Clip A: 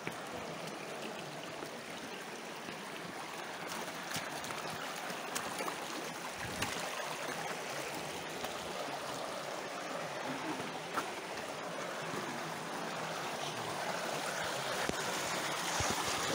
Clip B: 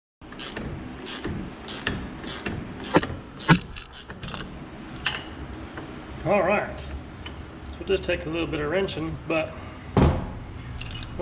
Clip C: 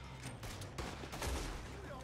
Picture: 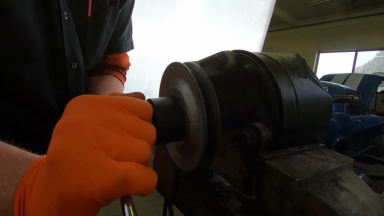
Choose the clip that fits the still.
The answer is B